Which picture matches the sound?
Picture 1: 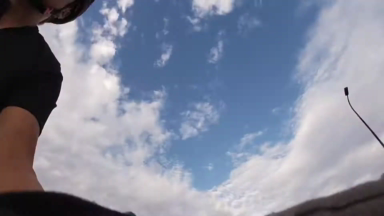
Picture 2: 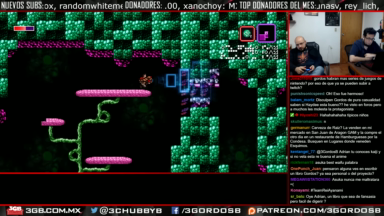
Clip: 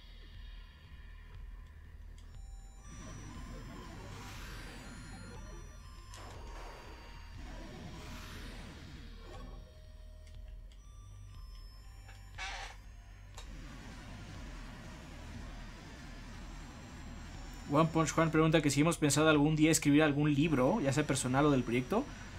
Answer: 2